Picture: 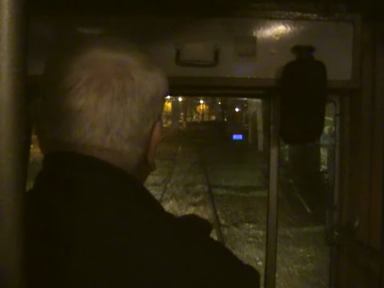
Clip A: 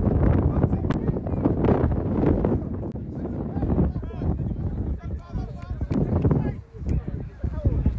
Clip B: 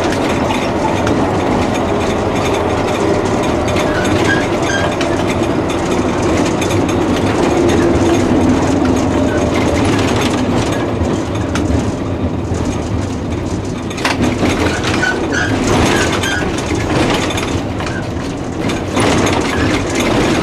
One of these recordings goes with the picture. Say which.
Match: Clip B